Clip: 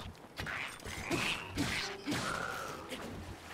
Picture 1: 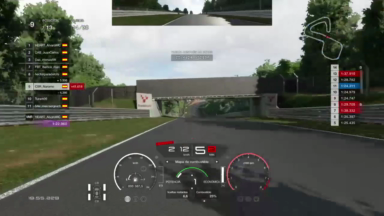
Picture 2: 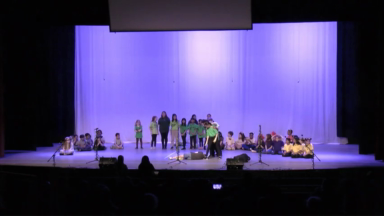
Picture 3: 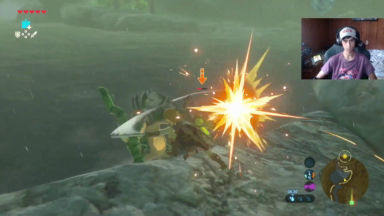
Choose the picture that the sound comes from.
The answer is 3